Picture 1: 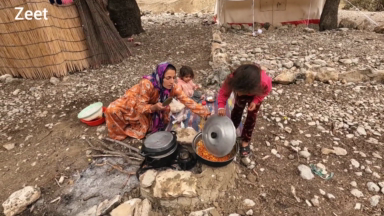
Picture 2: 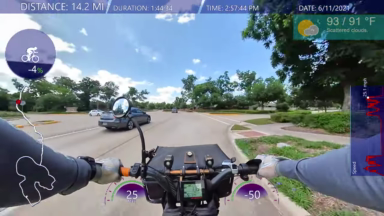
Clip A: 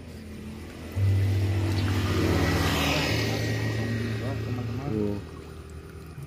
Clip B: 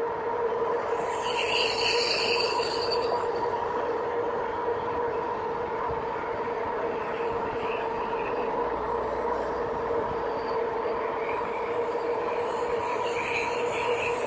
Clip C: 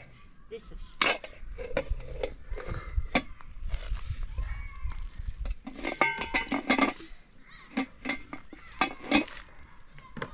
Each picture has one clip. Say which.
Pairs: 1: C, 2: B